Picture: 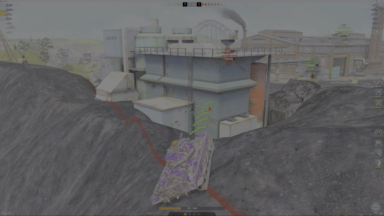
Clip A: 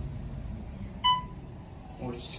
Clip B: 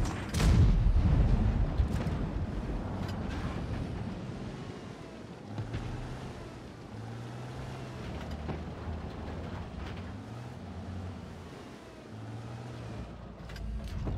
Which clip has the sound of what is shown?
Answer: B